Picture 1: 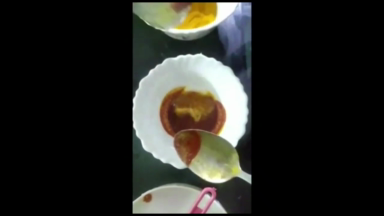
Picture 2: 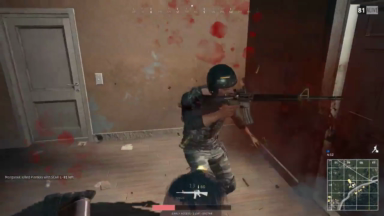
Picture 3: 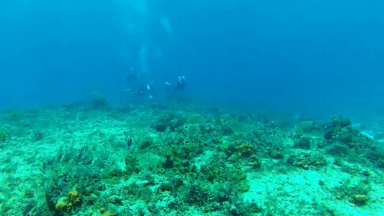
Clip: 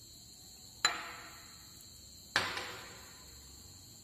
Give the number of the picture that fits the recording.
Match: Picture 1